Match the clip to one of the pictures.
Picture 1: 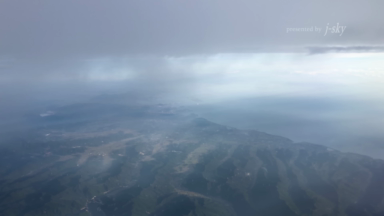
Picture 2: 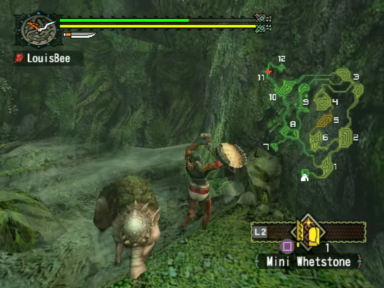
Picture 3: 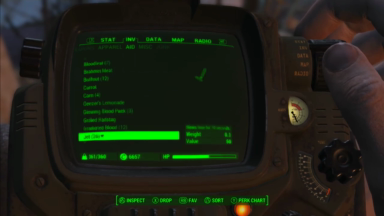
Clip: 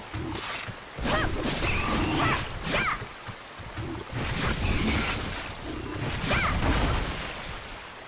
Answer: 2